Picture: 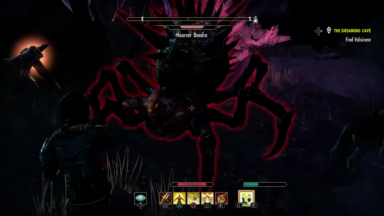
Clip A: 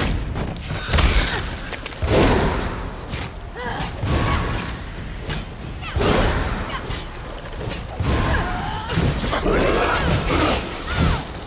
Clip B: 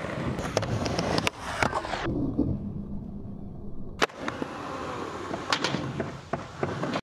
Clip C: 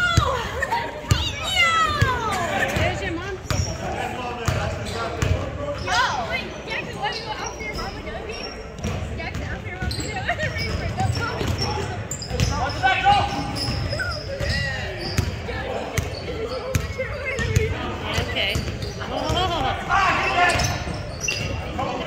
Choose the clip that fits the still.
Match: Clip A